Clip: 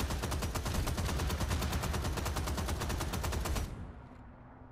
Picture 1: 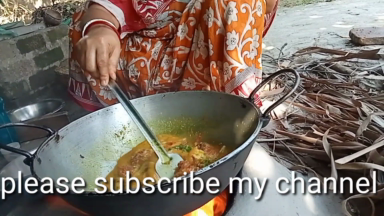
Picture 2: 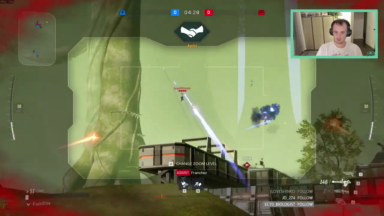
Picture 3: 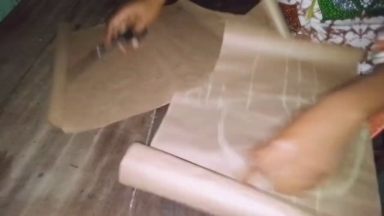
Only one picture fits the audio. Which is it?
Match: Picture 2